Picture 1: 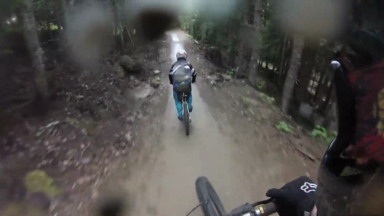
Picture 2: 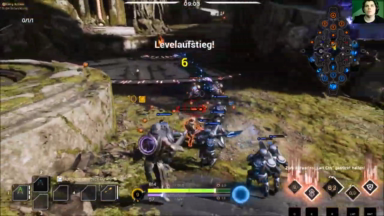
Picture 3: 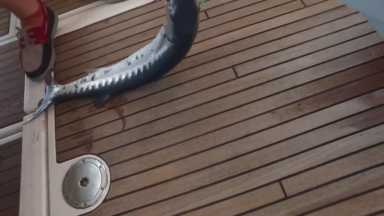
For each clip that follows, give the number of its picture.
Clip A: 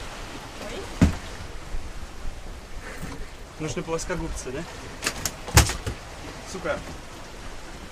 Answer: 3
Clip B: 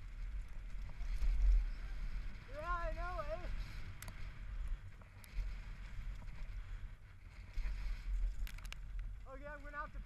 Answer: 1